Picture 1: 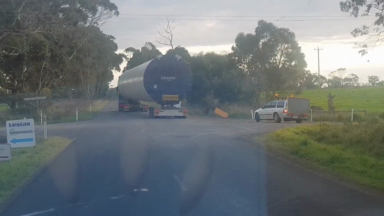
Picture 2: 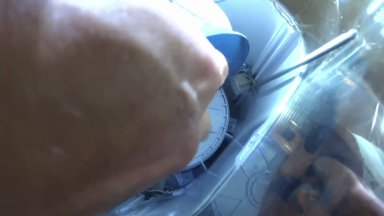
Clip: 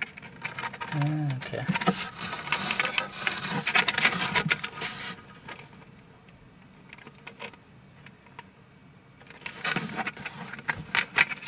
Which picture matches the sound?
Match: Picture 2